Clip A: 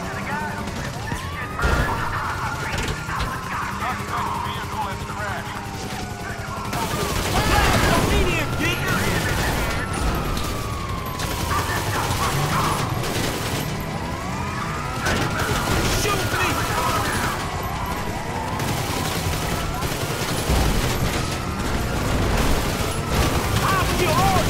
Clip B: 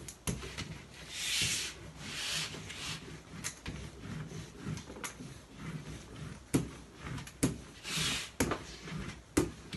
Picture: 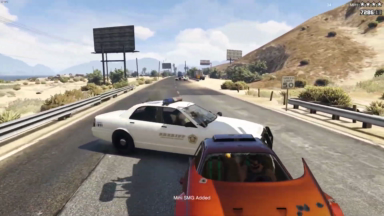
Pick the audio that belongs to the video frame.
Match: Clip A